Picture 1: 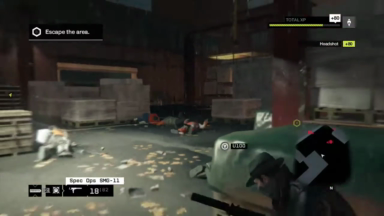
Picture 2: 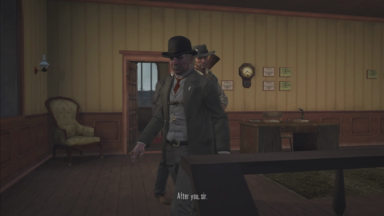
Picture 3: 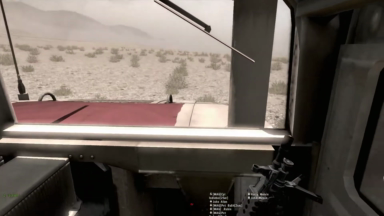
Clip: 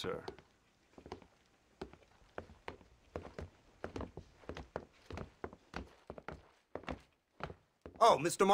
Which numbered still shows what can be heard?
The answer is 2